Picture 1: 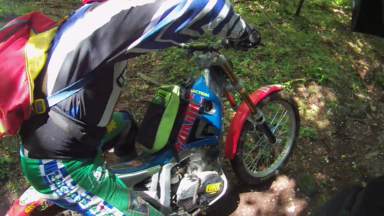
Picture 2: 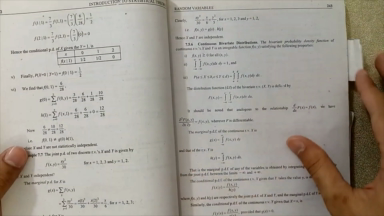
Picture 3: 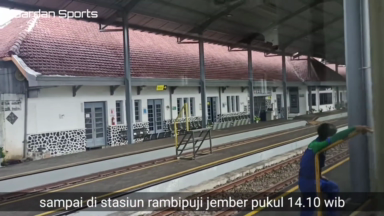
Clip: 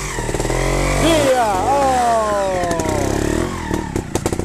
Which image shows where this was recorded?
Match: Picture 1